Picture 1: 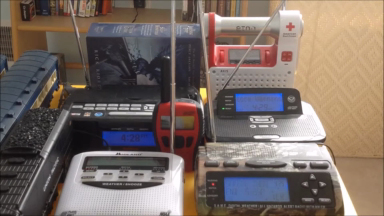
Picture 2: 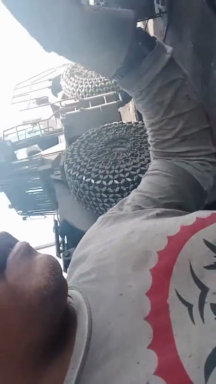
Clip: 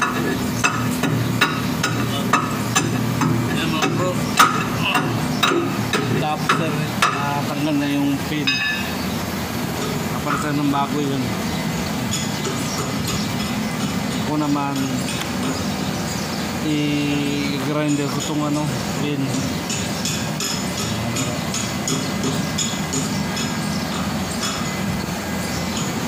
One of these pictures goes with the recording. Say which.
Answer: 2